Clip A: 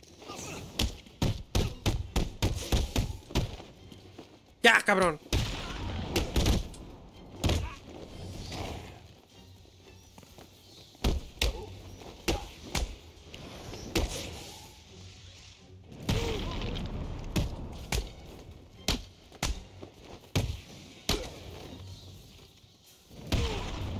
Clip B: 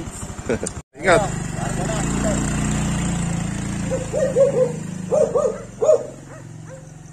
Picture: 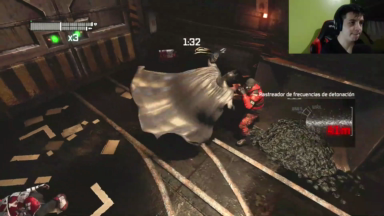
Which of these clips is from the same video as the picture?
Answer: A